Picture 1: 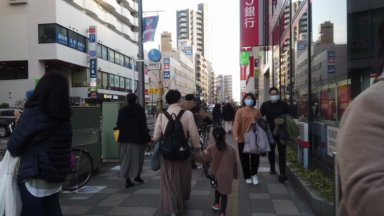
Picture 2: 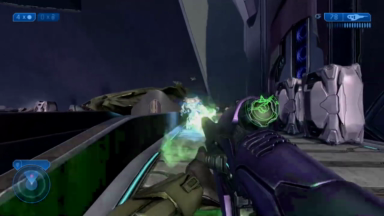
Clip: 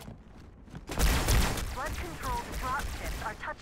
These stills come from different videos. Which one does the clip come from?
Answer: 2